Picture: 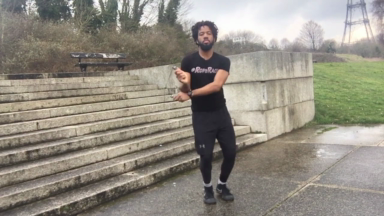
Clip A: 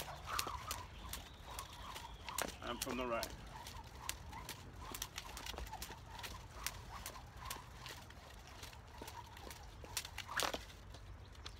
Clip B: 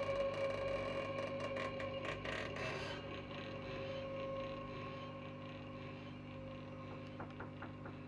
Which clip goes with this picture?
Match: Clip A